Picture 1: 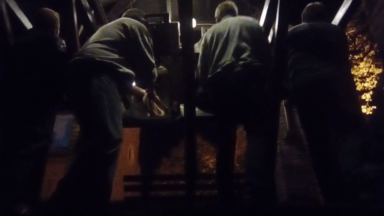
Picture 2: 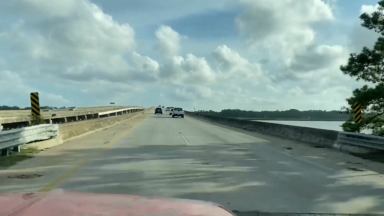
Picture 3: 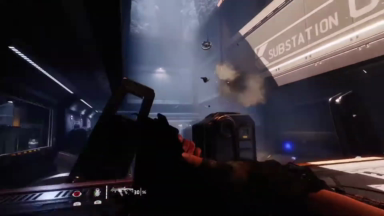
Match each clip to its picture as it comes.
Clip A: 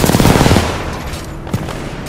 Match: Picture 3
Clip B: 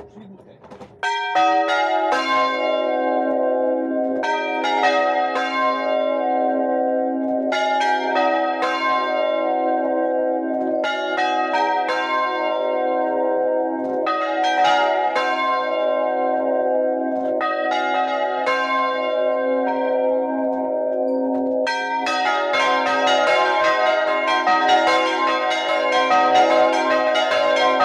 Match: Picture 1